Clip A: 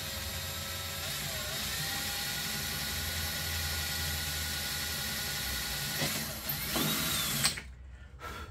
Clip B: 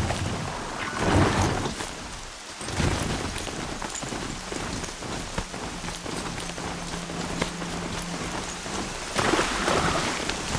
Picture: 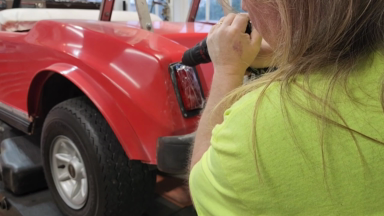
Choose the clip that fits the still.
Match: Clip A